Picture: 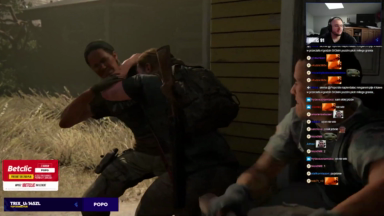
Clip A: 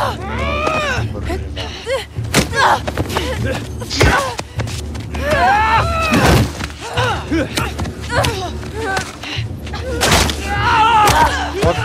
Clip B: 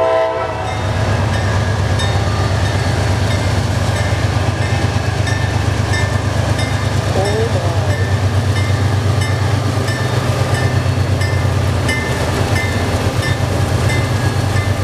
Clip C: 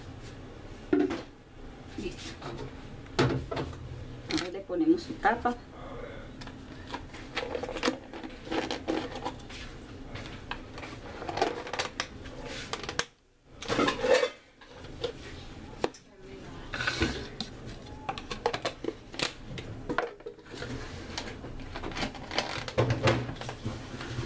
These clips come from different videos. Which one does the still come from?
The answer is A